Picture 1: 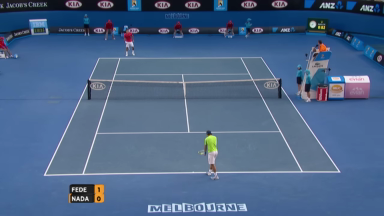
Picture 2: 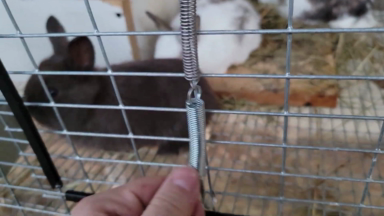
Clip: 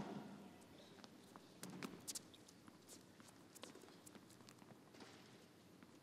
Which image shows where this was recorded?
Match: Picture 1